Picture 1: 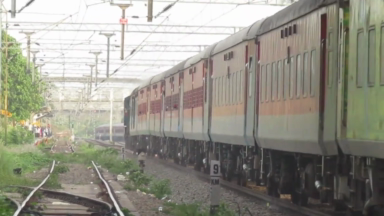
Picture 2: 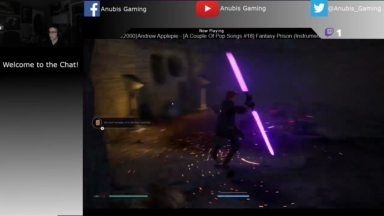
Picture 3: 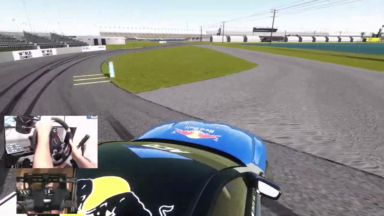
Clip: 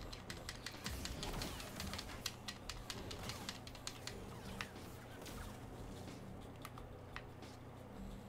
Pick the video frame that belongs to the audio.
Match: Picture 2